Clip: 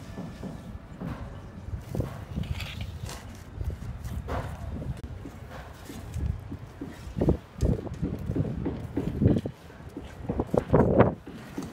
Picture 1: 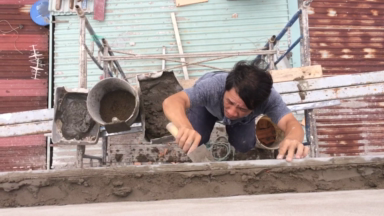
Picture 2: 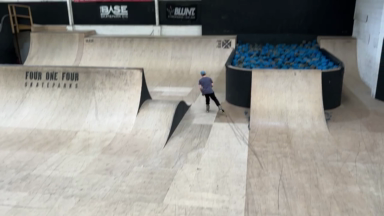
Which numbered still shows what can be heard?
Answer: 1